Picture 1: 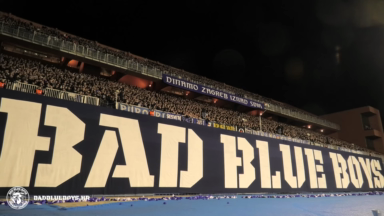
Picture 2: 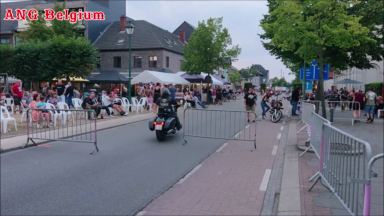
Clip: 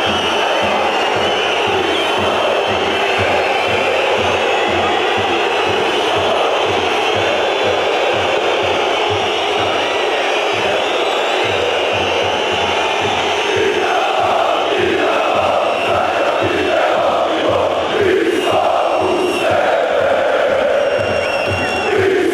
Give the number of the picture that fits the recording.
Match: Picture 1